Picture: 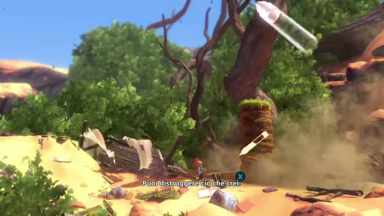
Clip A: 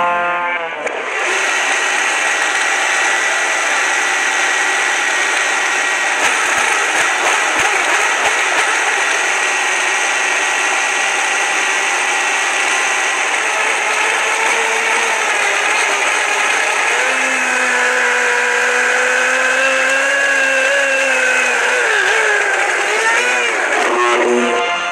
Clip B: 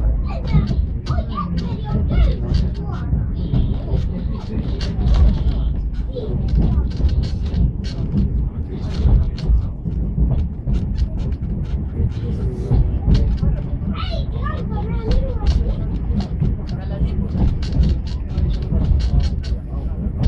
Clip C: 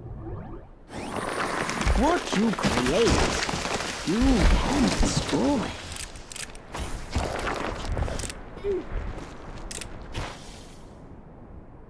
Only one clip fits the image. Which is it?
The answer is C